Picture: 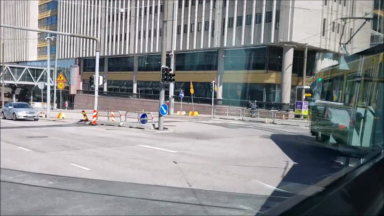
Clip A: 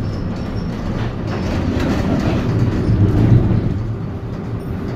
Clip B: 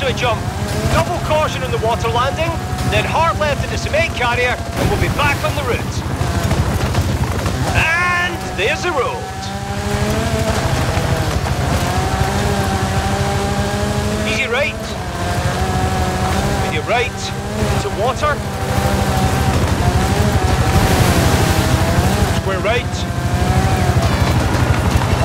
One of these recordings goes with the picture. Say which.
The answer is A